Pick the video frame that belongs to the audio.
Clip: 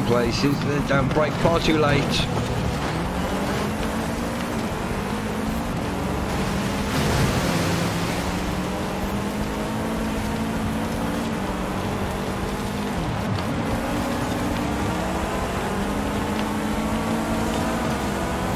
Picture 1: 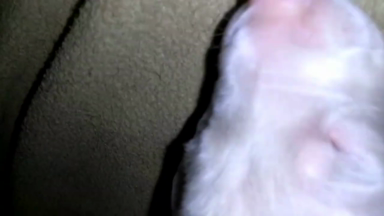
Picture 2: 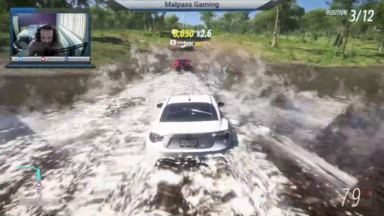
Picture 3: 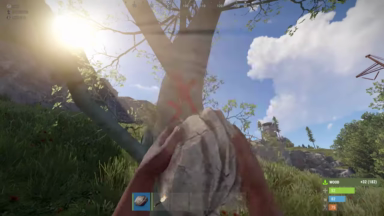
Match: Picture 2